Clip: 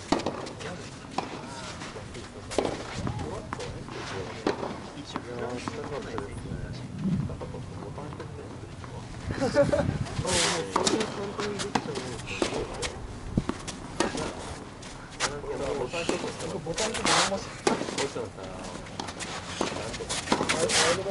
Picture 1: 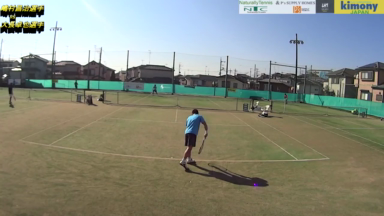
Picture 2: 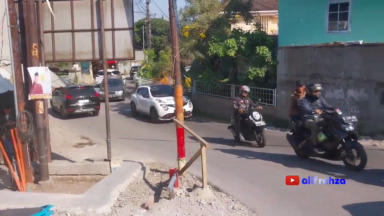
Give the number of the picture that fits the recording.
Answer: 1